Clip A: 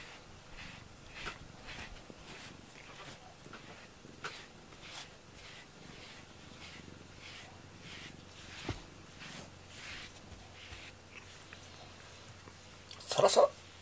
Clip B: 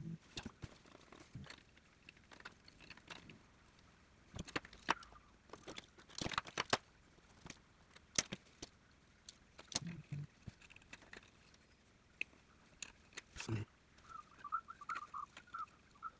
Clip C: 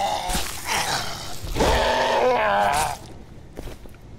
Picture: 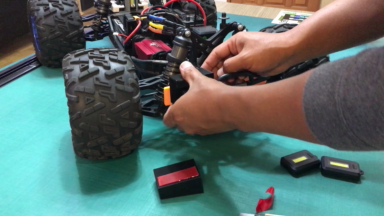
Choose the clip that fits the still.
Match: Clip B